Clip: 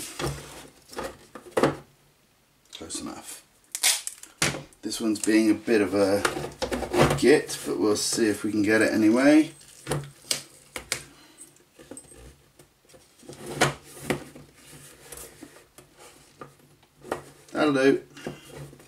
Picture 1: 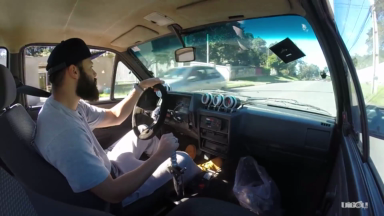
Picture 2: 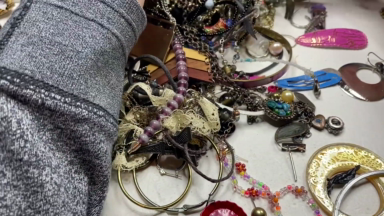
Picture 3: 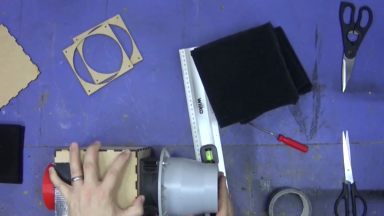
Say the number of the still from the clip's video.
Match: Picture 3